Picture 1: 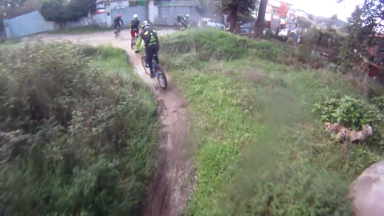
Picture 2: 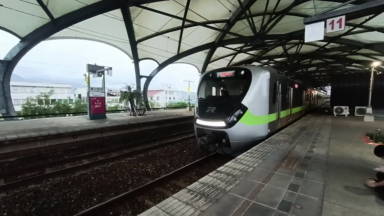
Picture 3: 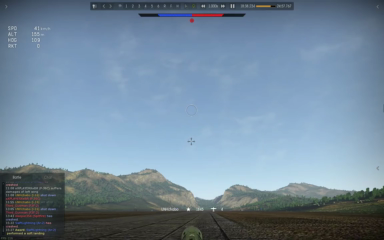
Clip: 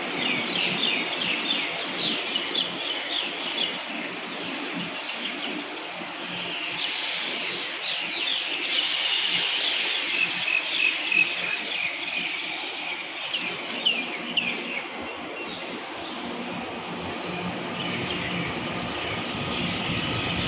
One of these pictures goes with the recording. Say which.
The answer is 2